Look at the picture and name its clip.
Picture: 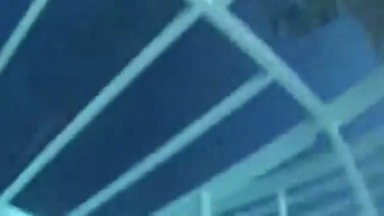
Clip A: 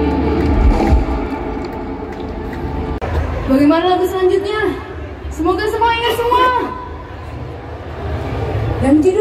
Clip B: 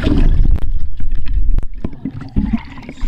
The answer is B